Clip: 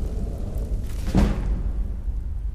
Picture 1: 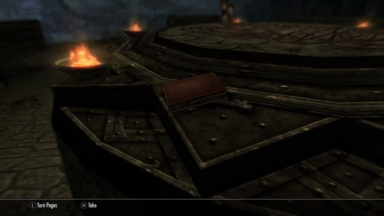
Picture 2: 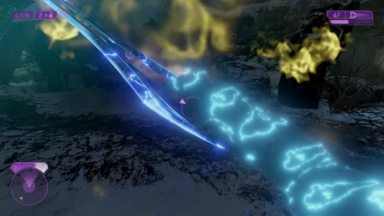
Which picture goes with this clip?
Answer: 1